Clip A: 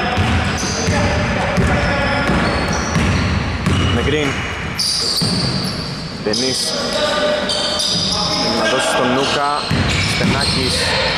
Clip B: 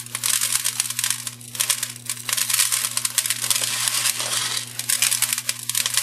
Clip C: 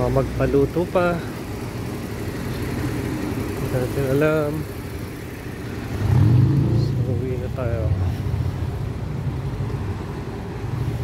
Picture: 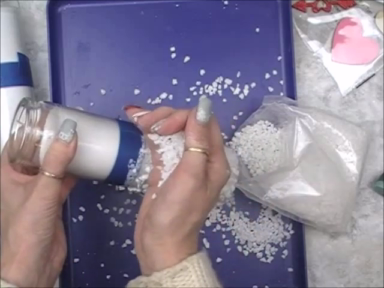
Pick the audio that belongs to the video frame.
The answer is B